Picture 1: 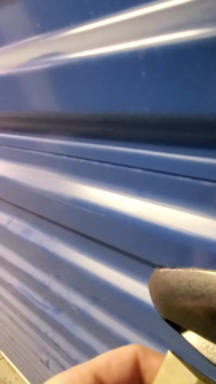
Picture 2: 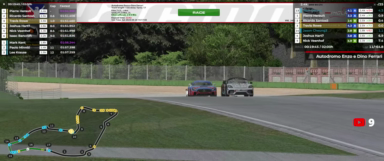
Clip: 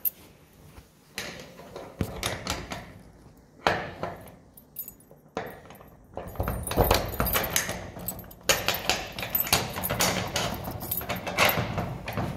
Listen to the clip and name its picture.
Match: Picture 1